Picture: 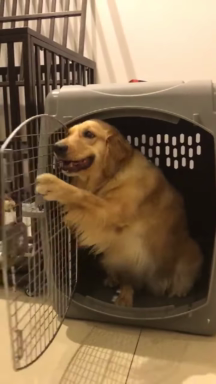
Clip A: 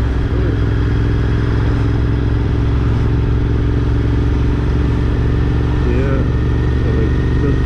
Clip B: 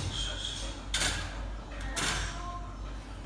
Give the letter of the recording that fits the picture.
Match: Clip B